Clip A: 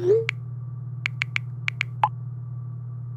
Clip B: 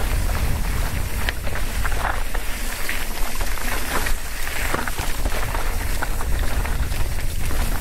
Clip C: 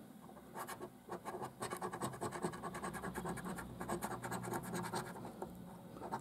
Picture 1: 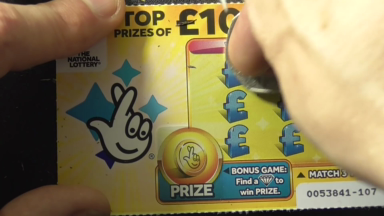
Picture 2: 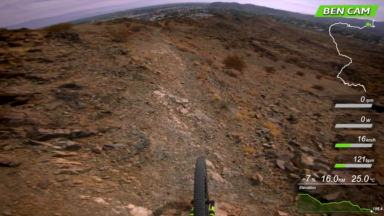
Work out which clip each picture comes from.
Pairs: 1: C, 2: B